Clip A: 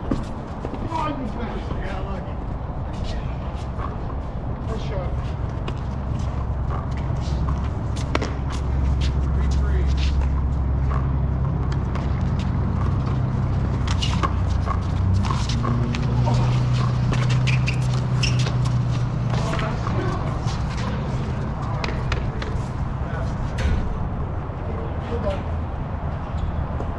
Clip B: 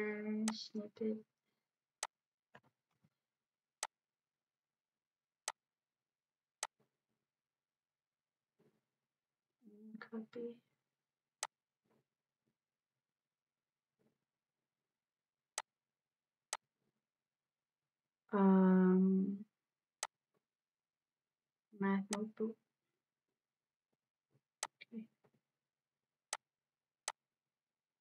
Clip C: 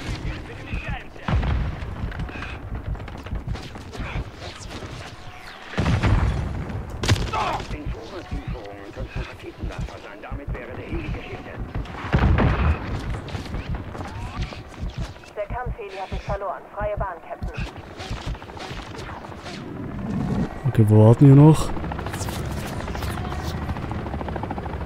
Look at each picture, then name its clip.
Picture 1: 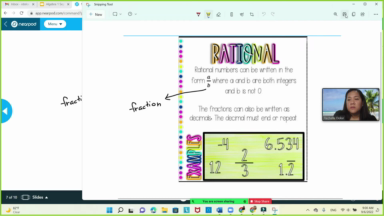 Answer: B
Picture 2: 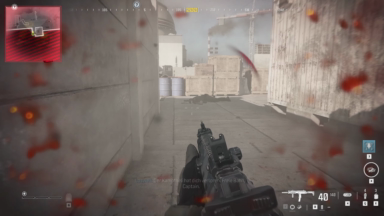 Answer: C